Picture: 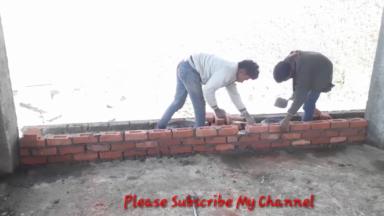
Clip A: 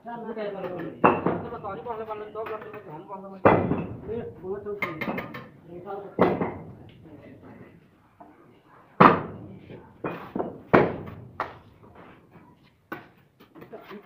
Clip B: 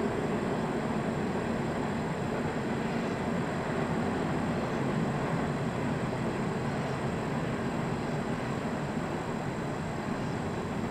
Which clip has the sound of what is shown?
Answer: A